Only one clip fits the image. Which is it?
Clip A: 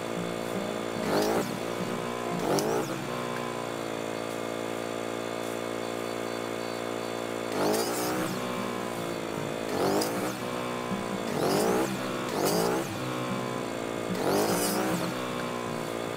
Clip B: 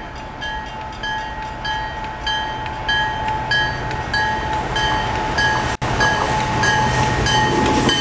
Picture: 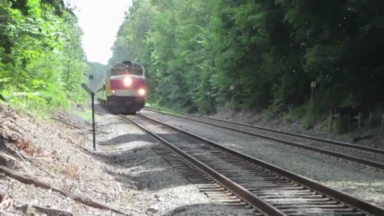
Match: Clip B